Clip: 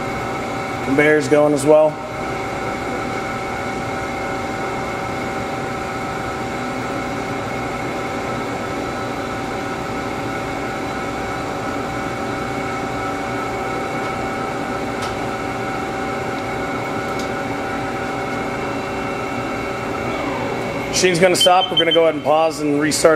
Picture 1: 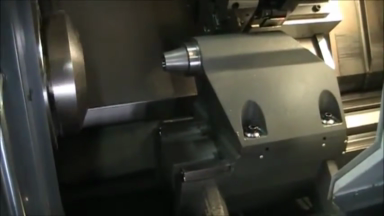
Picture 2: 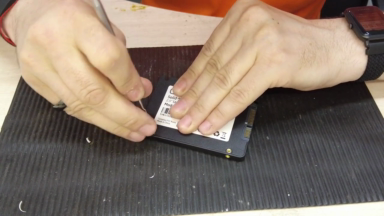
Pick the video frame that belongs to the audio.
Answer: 1